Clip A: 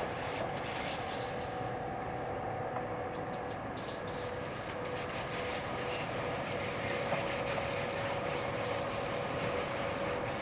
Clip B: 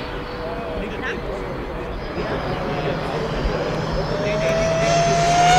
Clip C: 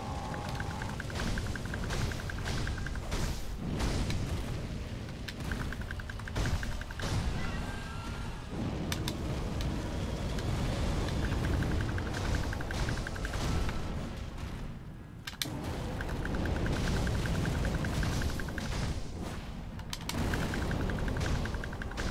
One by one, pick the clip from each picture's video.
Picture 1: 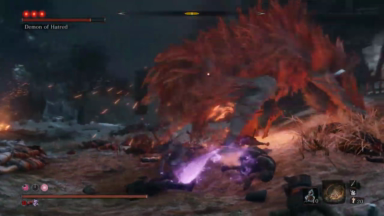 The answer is C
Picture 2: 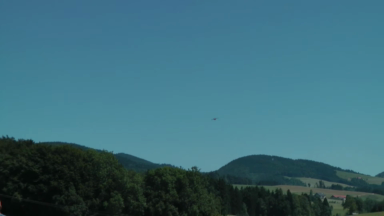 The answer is B